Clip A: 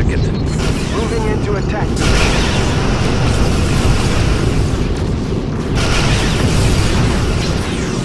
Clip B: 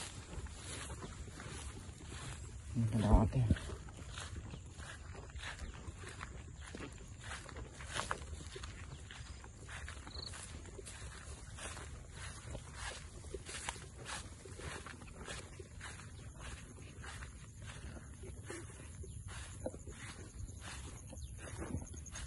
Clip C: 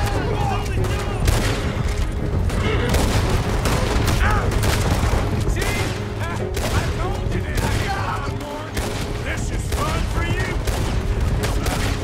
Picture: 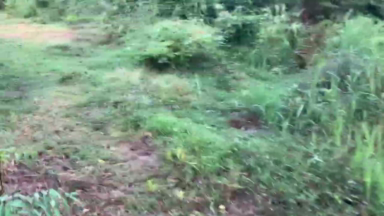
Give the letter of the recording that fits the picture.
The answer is B